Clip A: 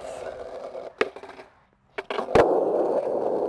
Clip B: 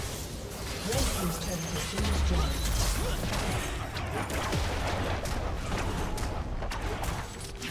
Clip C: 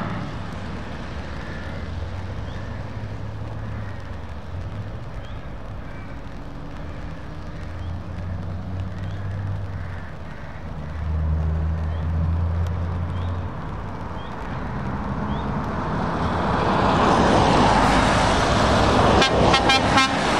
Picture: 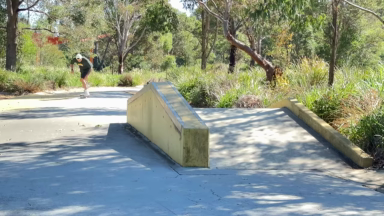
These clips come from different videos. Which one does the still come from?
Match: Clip A